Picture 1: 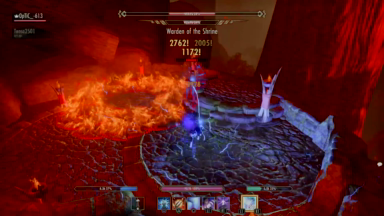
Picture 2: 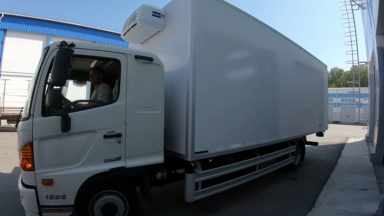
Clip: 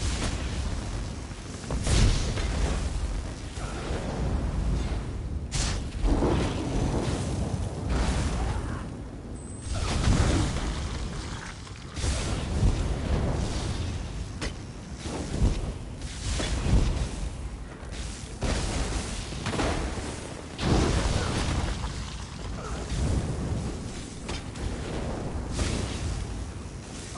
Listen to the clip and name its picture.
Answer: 1